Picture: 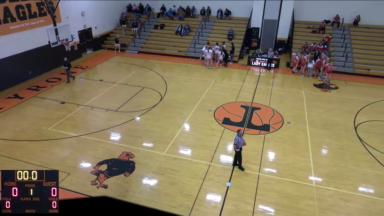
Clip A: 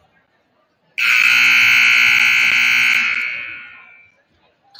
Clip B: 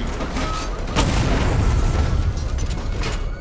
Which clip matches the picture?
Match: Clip A